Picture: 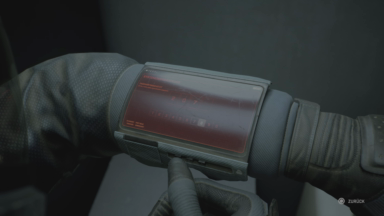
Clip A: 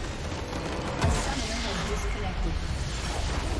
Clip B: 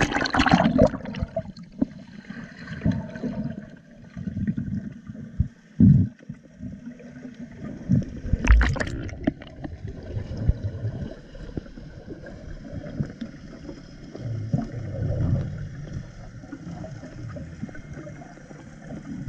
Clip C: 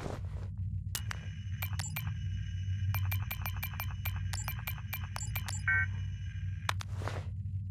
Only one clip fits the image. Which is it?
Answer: C